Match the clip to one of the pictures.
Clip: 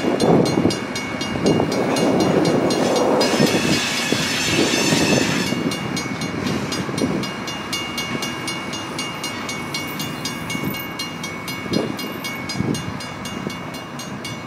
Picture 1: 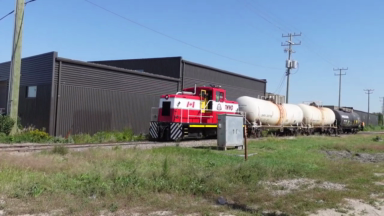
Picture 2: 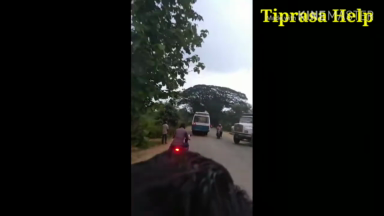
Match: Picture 1